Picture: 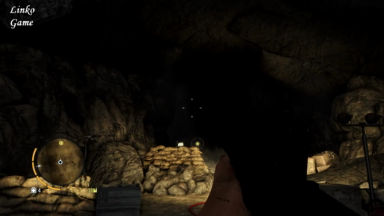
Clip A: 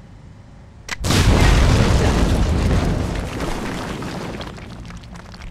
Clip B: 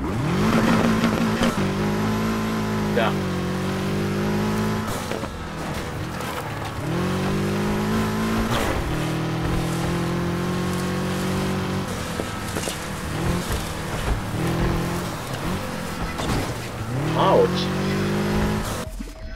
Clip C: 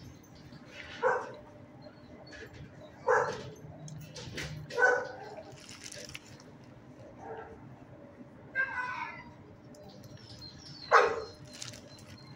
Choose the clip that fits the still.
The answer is A